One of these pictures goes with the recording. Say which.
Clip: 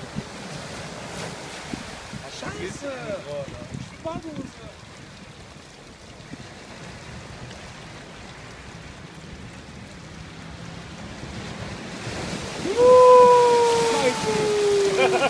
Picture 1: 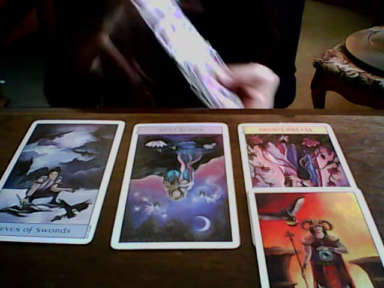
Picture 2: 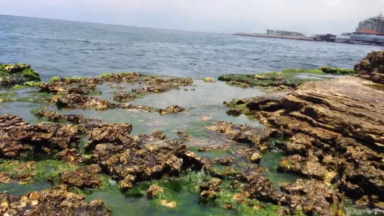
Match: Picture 2